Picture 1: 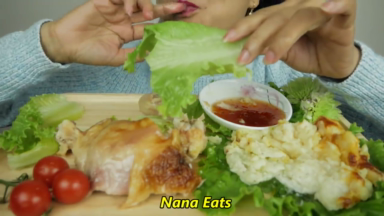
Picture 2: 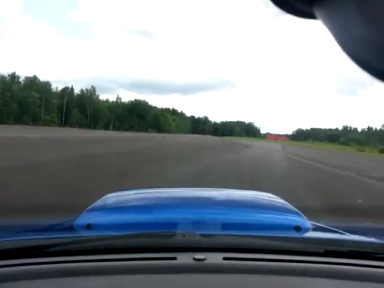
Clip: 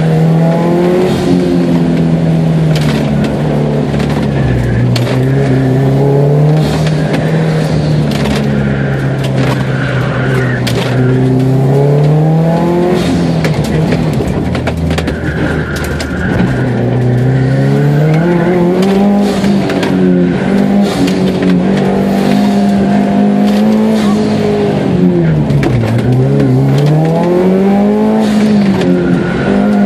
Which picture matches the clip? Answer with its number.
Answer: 2